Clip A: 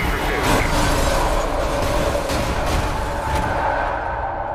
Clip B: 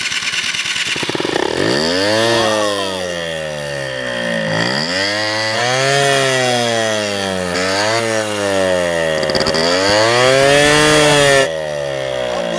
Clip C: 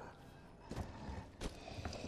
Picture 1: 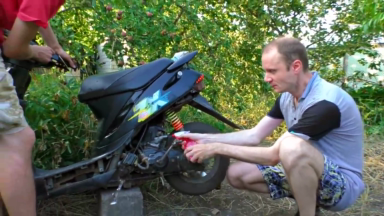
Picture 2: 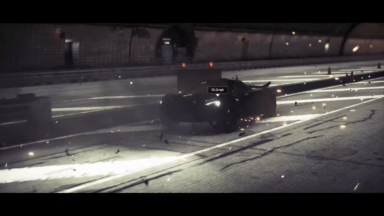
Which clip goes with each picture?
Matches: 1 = B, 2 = A